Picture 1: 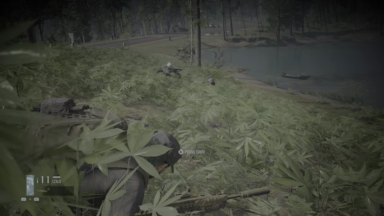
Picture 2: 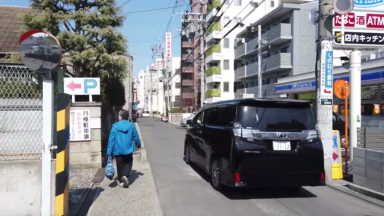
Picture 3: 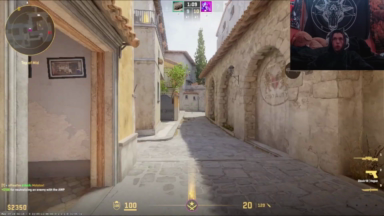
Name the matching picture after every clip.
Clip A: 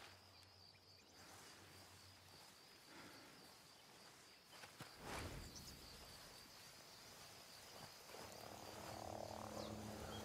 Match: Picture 1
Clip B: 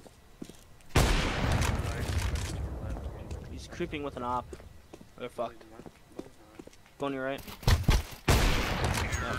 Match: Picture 3